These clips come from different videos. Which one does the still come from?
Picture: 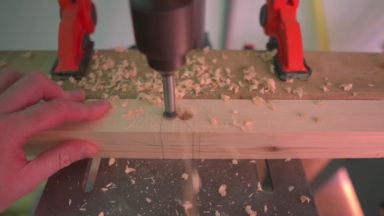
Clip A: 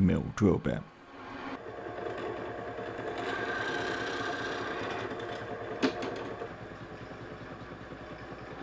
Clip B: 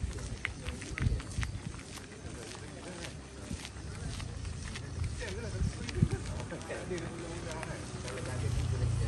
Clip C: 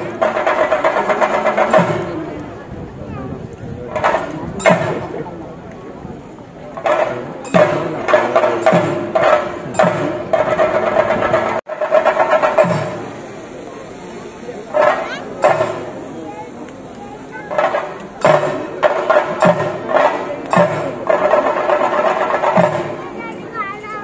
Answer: A